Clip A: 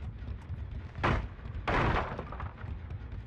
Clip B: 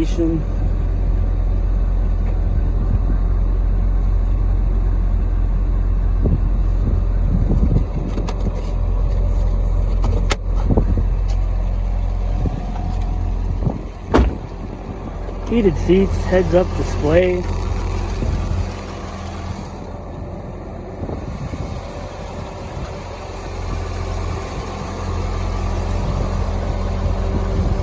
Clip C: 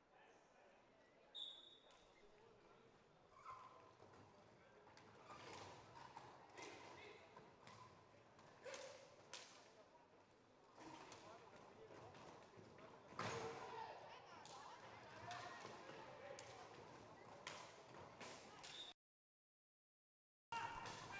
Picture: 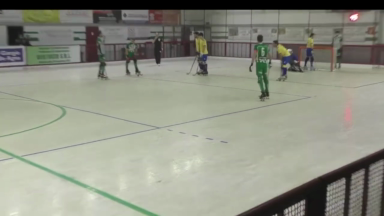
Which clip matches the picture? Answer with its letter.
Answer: C